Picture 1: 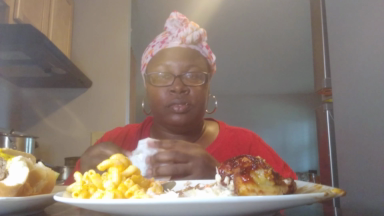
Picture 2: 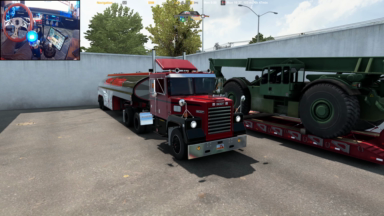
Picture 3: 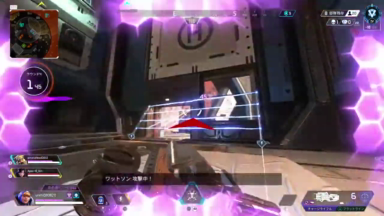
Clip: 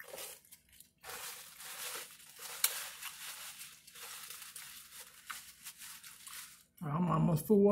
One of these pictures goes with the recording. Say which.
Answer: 1